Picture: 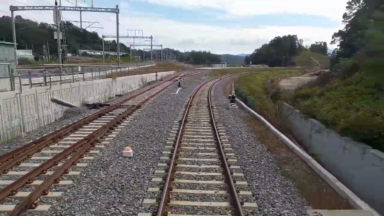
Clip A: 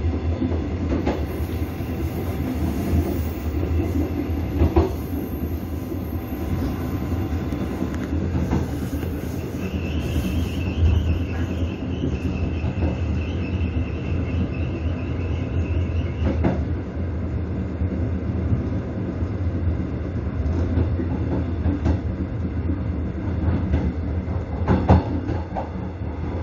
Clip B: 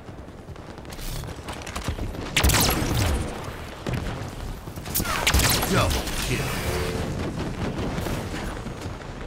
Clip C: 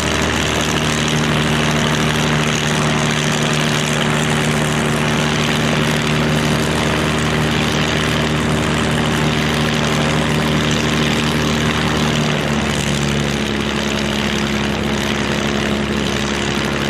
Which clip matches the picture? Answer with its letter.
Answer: A